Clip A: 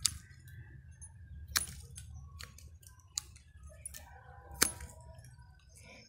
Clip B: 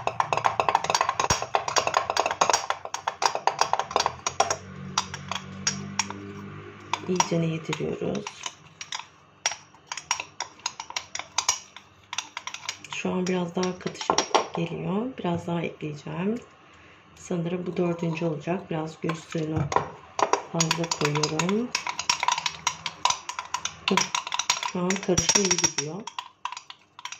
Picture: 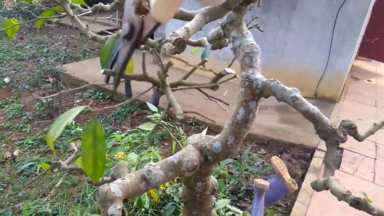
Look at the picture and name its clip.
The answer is A